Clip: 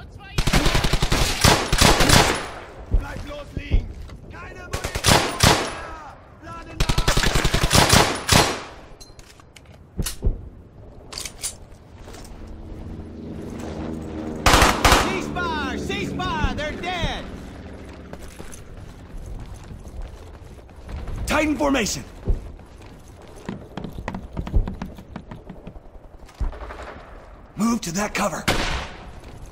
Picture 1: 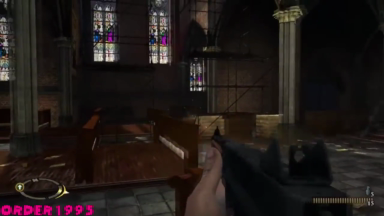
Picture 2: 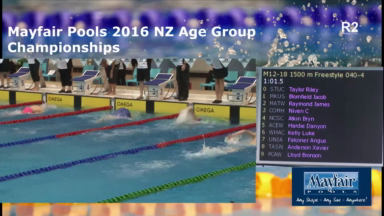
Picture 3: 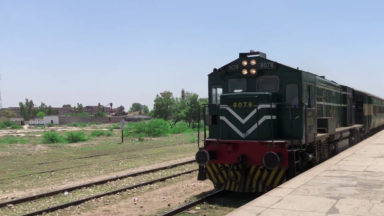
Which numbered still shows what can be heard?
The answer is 1